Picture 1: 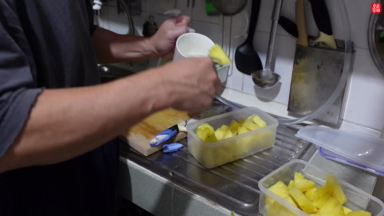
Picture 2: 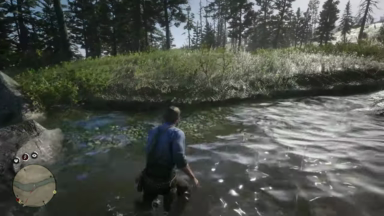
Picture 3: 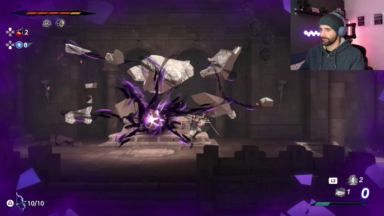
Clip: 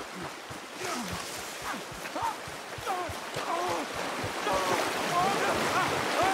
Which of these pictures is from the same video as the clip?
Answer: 2